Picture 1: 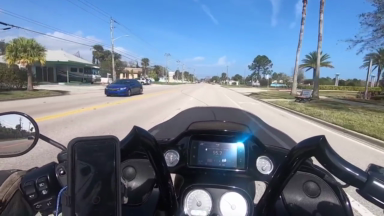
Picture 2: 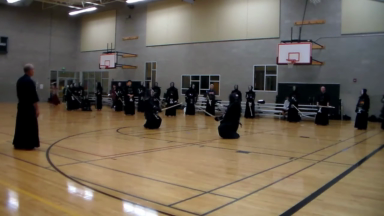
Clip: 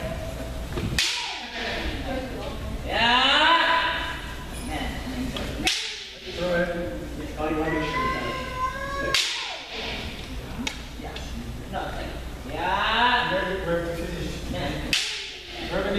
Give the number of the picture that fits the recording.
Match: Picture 2